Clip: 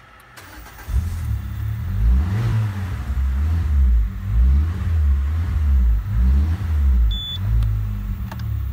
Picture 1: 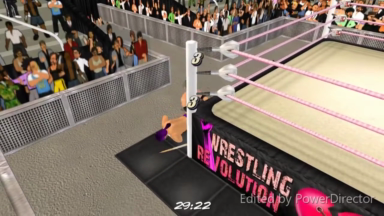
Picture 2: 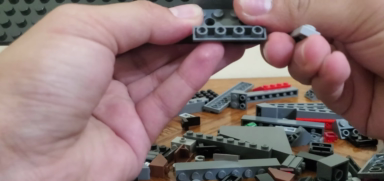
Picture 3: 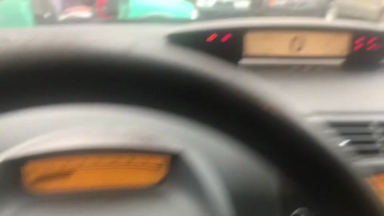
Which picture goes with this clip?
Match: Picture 3